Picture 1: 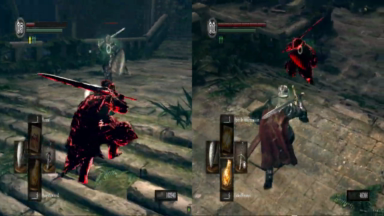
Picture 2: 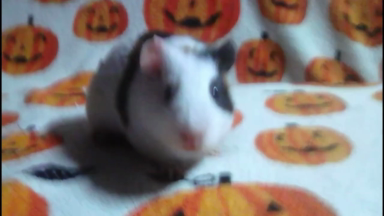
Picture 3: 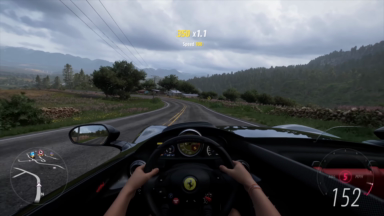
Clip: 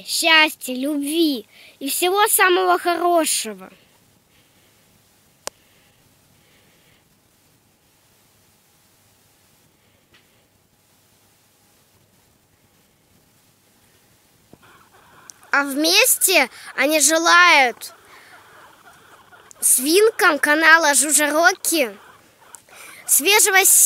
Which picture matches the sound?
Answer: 2